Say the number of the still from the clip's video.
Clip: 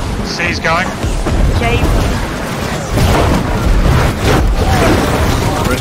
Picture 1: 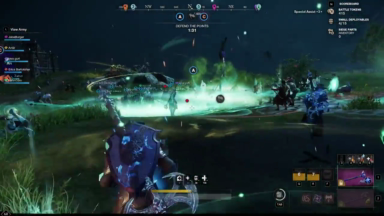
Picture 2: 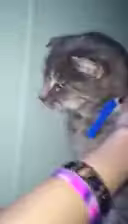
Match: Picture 1